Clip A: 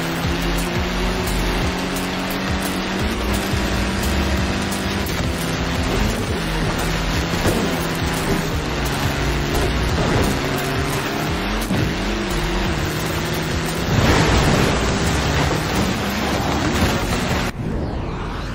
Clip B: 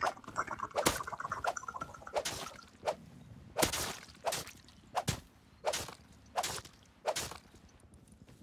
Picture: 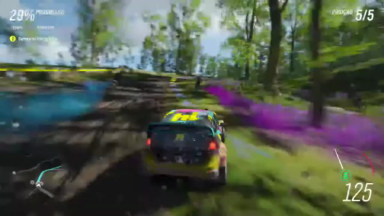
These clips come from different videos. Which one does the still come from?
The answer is A